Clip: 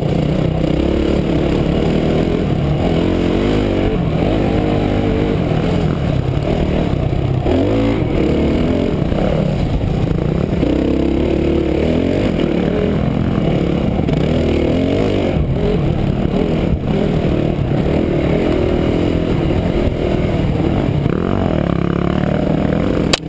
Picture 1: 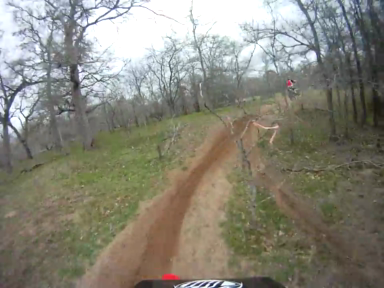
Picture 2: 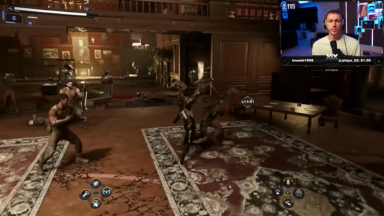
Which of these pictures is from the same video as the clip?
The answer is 1